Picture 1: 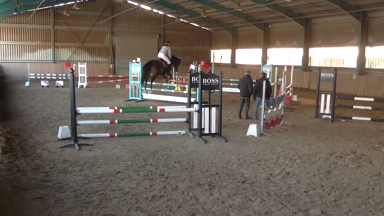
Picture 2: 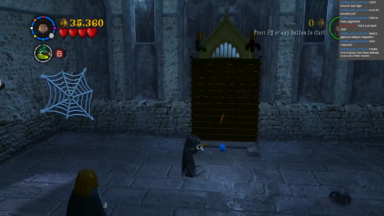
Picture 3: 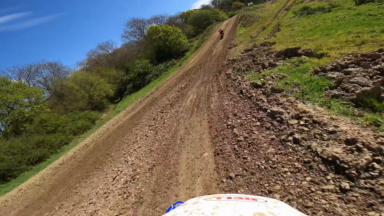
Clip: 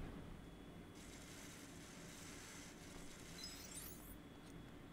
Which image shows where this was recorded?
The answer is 2